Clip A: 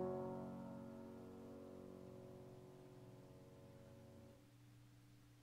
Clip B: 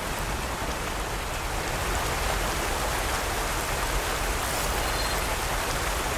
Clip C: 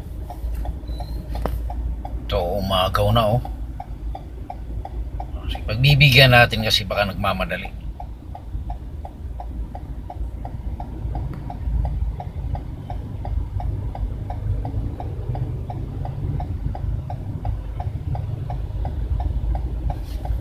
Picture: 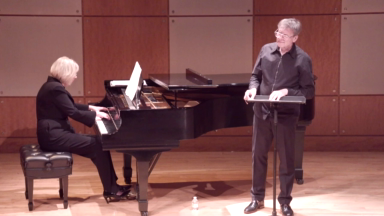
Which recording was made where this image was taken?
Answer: A